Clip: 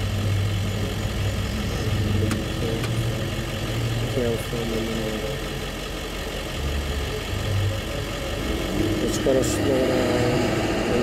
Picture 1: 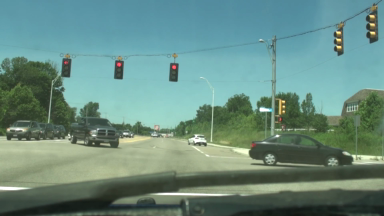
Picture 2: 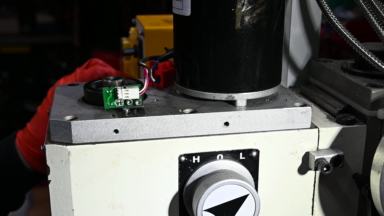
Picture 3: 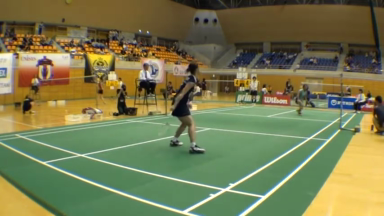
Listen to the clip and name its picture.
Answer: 1